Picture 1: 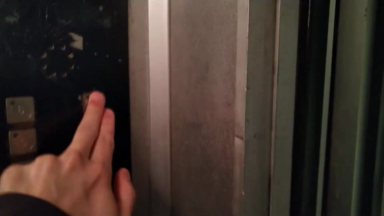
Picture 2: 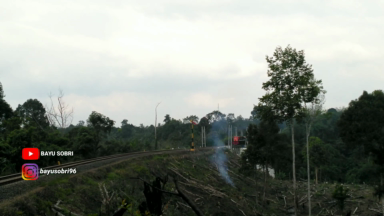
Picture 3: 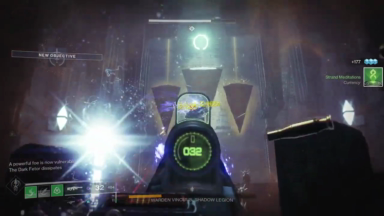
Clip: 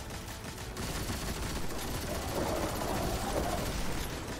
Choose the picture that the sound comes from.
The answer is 3